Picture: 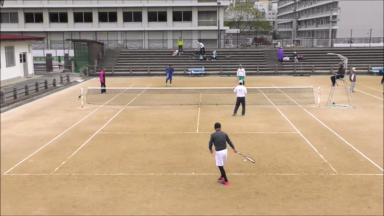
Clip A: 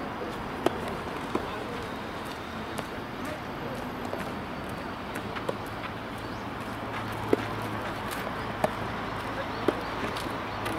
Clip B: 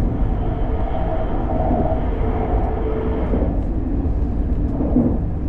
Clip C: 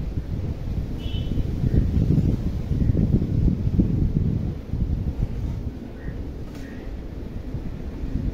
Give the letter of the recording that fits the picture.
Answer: A